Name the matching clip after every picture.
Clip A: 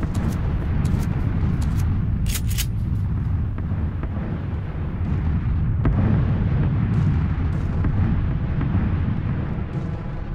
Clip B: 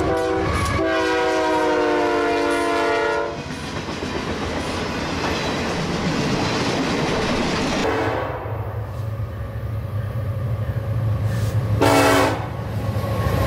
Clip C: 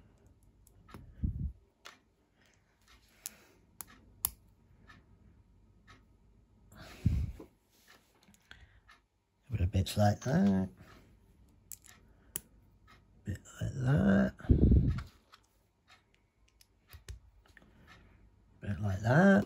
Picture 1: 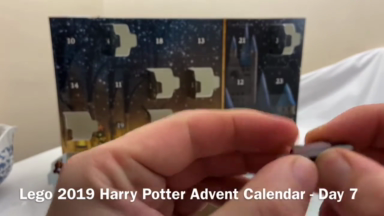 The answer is C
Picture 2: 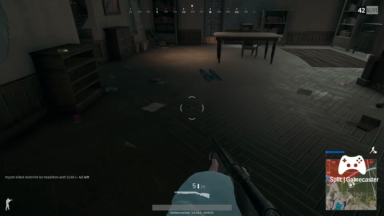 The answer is A